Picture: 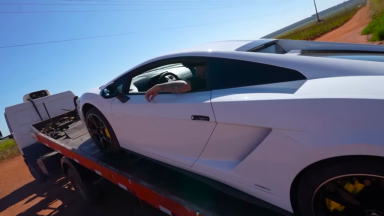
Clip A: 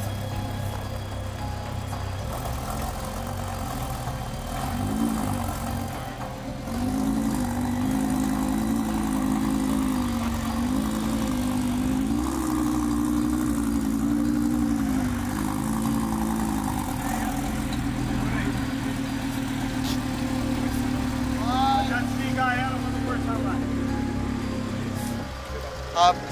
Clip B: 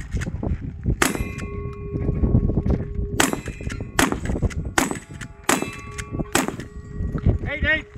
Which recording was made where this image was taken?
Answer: A